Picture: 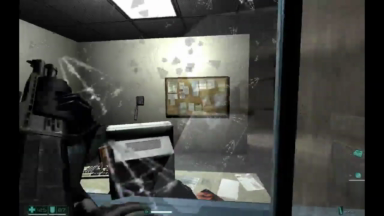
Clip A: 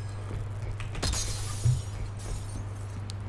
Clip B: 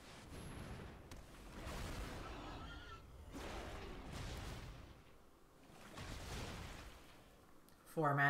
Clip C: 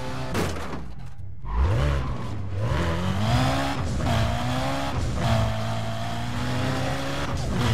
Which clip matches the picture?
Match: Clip A